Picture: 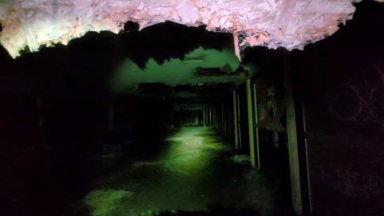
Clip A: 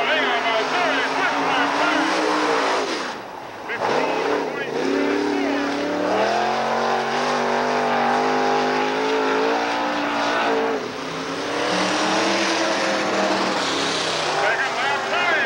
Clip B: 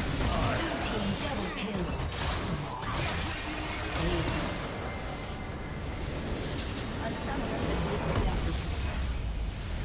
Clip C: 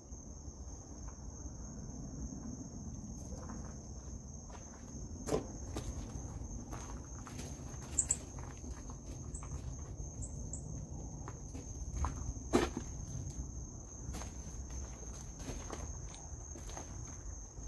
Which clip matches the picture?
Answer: C